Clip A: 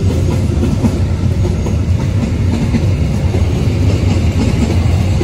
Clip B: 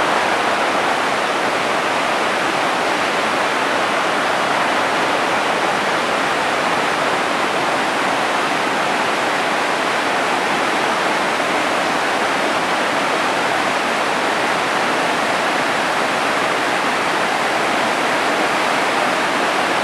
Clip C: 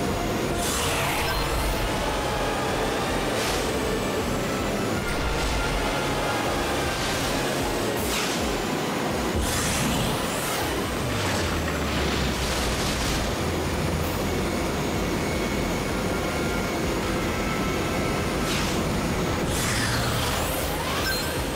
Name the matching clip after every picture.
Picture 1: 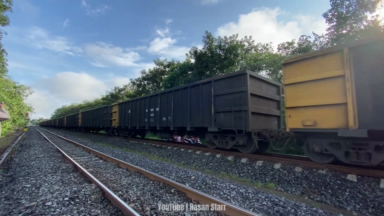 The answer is A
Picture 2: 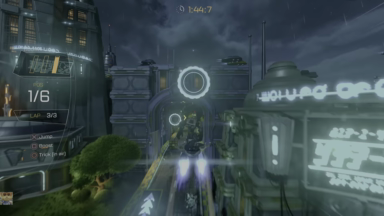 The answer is C